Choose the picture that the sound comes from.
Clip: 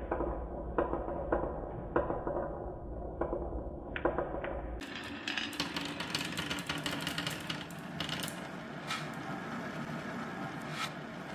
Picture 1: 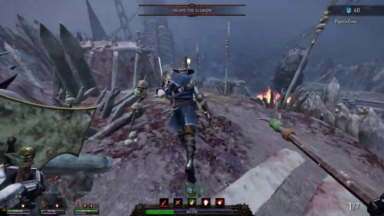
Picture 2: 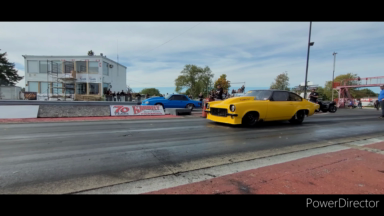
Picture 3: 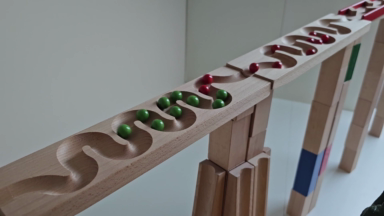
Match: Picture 3